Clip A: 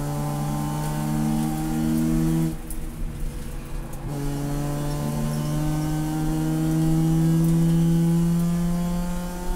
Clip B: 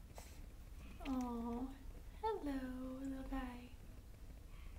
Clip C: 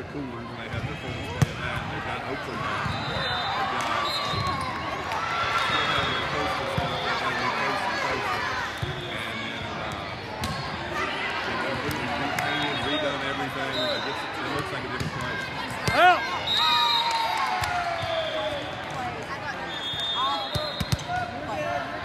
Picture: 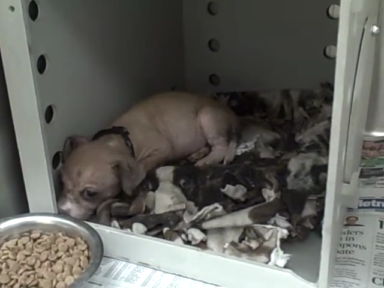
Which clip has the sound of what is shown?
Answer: B